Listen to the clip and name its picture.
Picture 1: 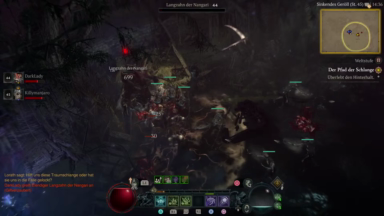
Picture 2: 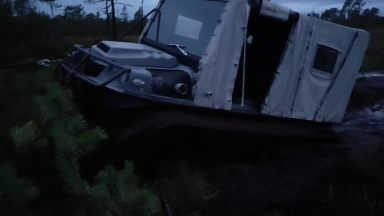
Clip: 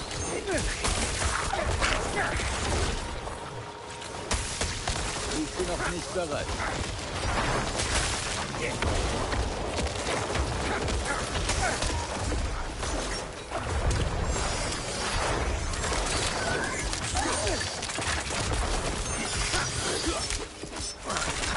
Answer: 1